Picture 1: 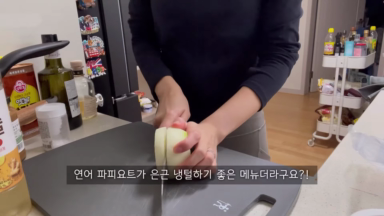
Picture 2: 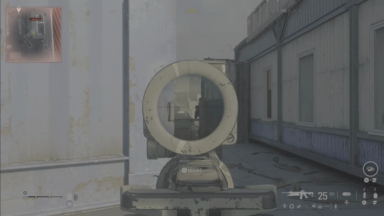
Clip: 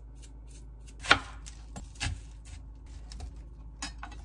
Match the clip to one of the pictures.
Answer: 1